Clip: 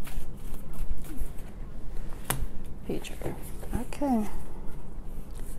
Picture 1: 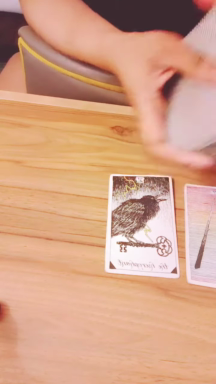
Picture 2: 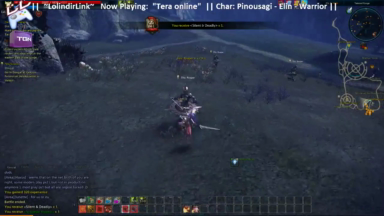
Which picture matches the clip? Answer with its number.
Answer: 1